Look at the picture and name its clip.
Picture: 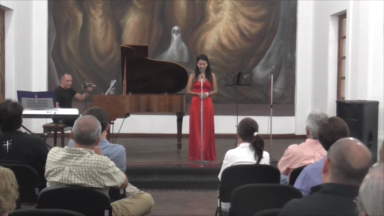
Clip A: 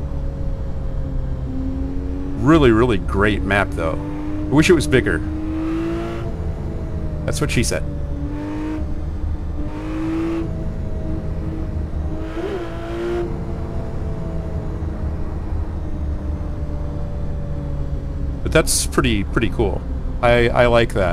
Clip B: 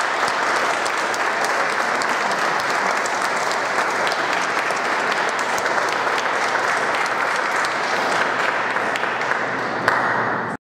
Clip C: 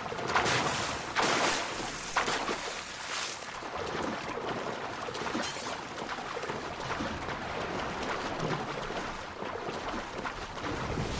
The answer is B